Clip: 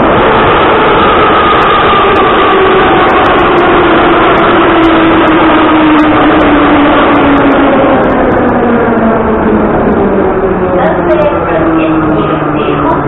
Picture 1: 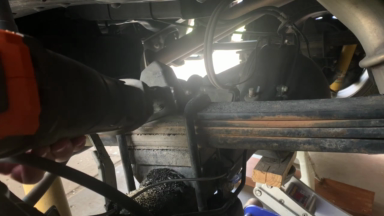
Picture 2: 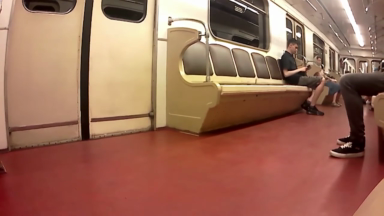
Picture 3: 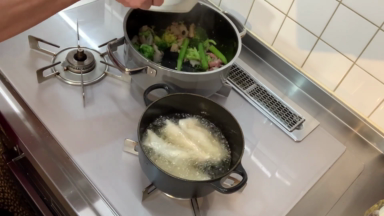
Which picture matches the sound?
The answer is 2